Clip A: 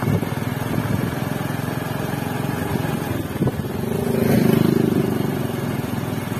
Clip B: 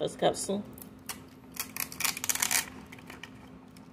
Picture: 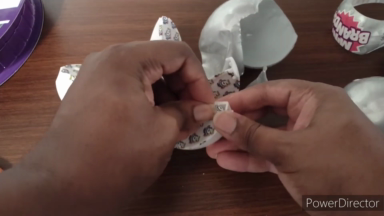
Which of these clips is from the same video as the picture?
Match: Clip B